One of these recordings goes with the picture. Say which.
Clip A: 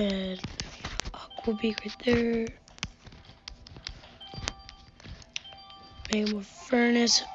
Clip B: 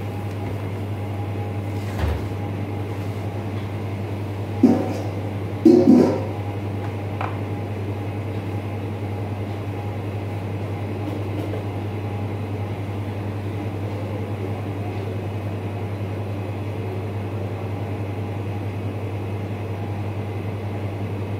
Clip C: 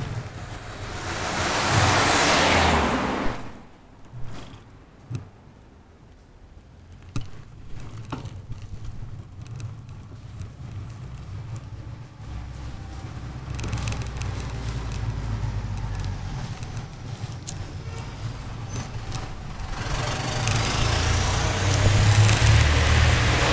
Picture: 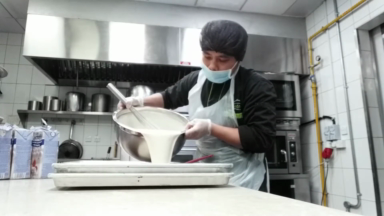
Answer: B